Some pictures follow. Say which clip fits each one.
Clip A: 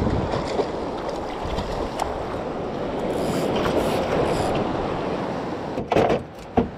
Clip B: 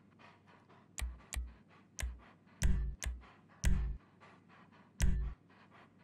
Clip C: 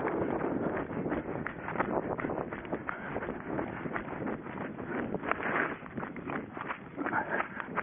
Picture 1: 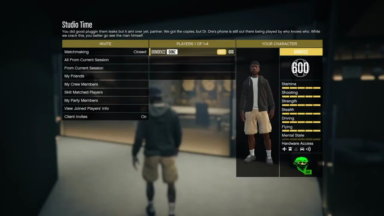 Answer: B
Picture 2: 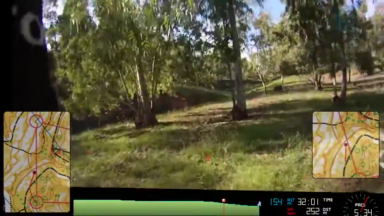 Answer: C